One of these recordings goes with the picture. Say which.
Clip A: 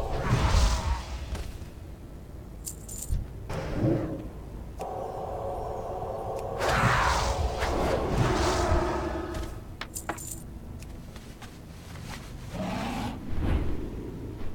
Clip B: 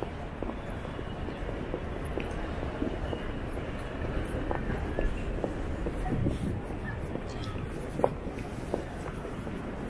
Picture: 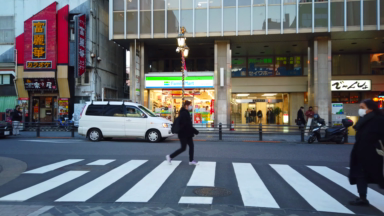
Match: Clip B